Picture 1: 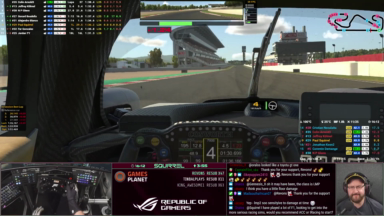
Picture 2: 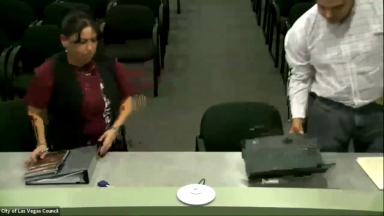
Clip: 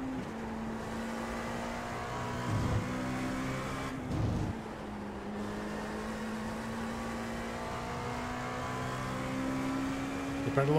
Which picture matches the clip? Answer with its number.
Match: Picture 1